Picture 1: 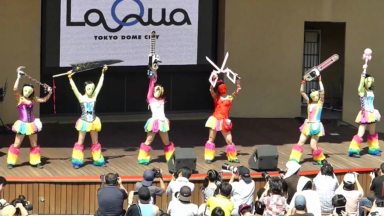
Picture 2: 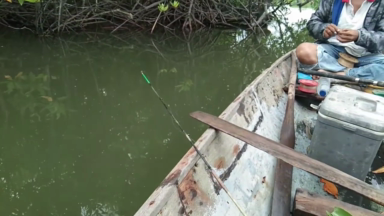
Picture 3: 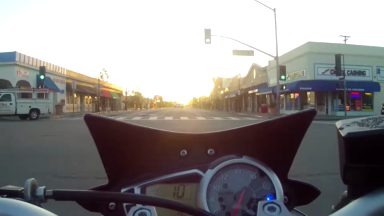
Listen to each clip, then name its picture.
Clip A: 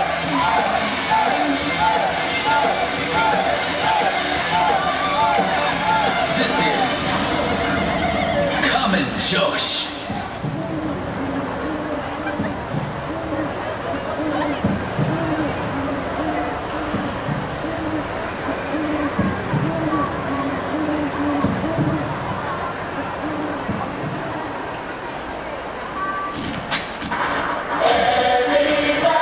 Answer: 1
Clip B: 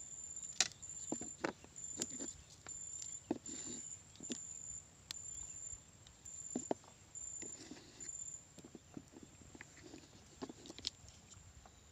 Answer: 2